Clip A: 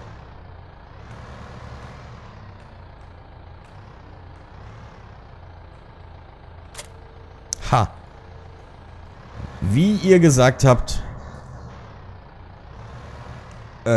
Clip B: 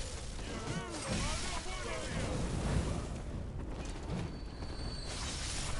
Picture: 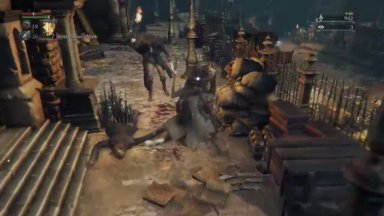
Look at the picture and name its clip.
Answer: B